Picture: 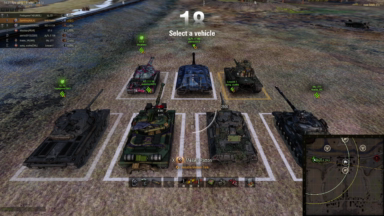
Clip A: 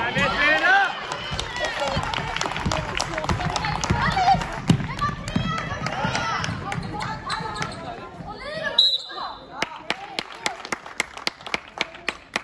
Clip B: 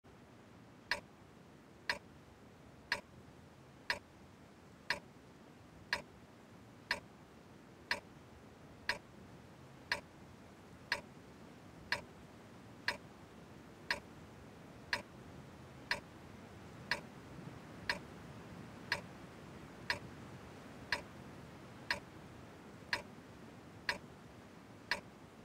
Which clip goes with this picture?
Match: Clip B